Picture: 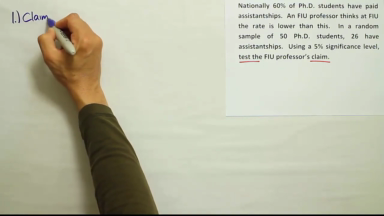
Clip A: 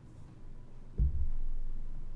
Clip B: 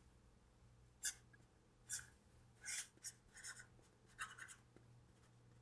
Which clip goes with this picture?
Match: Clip B